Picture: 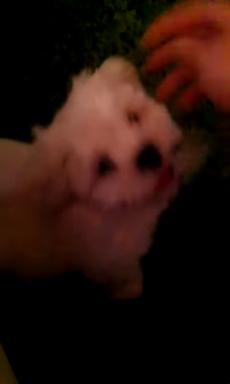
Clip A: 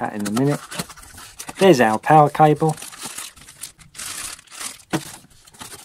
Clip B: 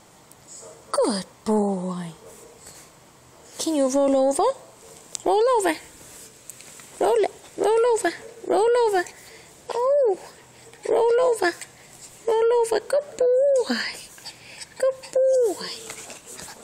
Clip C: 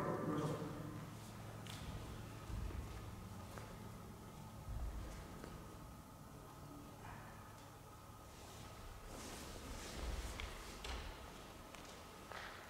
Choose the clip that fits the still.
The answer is B